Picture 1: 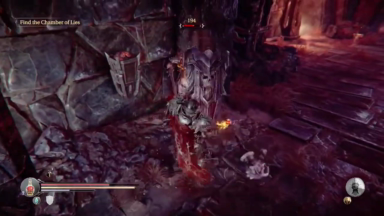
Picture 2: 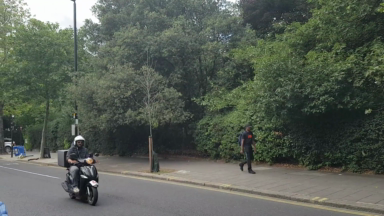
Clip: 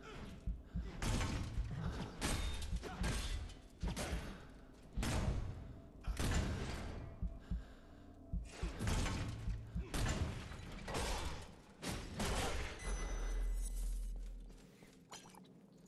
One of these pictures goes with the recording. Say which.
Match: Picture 1